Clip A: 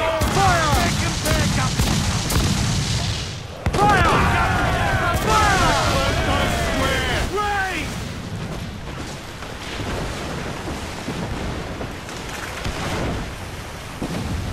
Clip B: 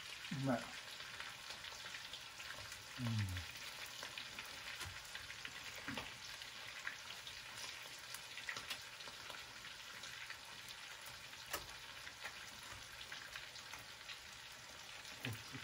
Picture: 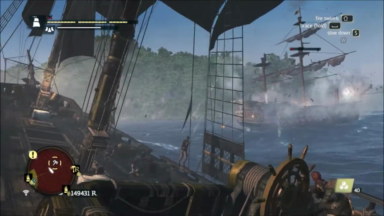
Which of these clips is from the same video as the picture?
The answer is A